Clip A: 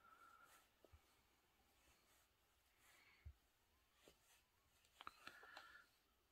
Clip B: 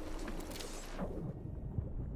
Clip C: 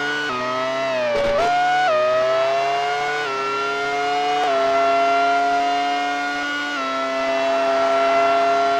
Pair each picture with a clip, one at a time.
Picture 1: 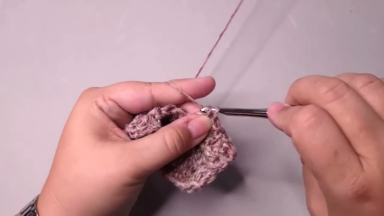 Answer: A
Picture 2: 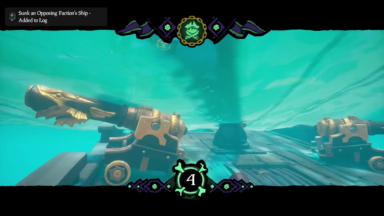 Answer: B